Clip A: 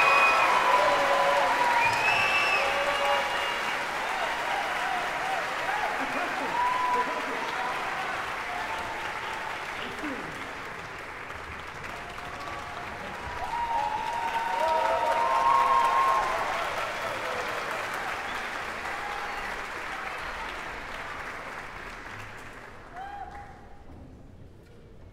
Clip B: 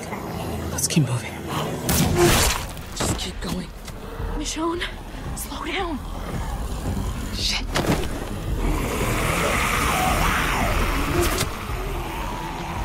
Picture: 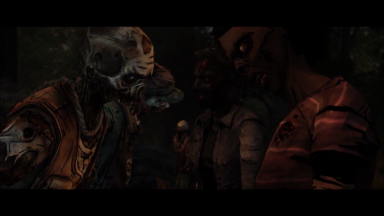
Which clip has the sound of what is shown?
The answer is B